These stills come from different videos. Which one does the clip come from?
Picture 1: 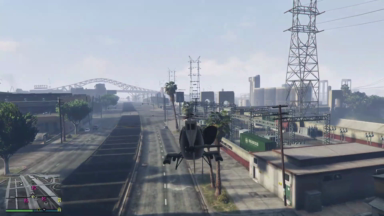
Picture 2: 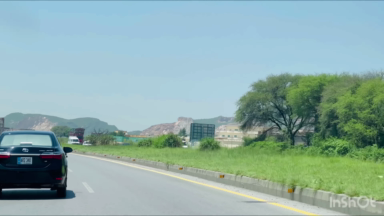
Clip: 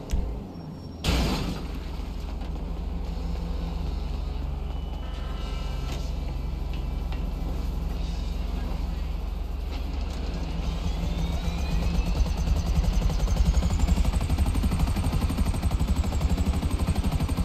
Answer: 1